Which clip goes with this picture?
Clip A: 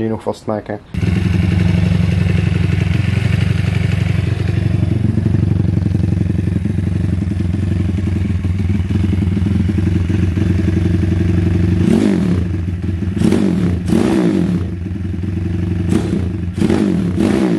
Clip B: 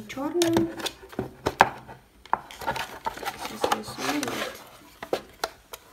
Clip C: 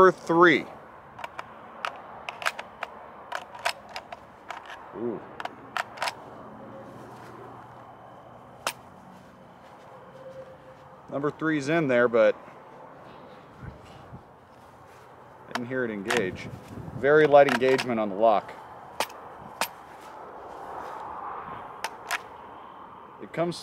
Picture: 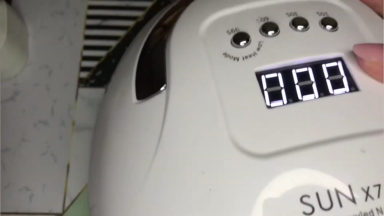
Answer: B